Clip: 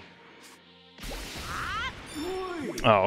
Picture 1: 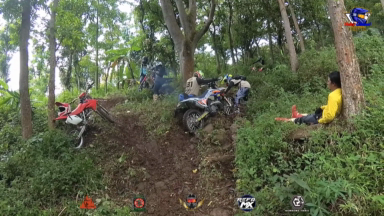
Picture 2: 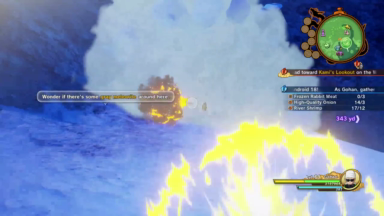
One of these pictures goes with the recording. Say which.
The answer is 2